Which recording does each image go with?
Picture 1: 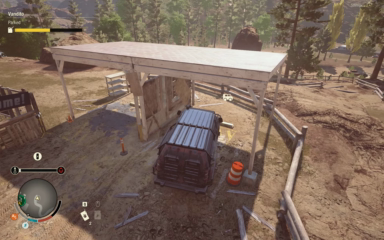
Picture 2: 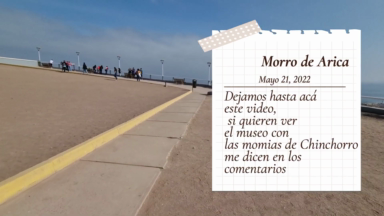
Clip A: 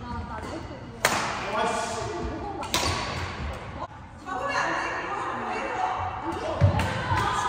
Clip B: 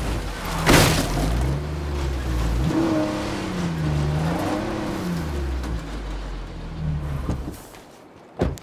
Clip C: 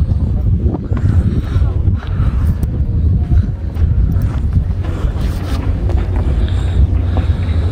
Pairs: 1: B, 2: C